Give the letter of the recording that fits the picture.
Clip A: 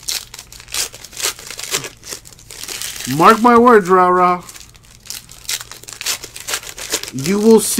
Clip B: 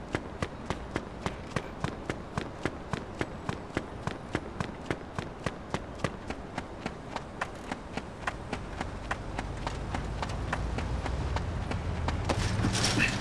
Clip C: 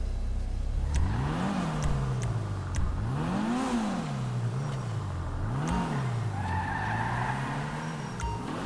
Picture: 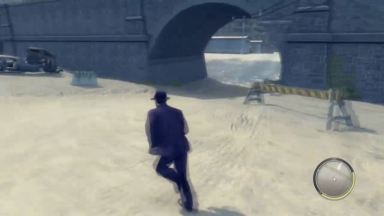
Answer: B